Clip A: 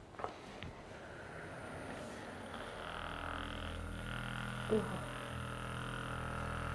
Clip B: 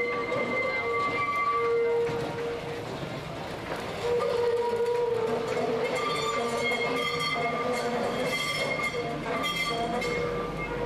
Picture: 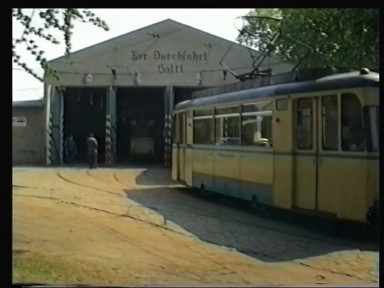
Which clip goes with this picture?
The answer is B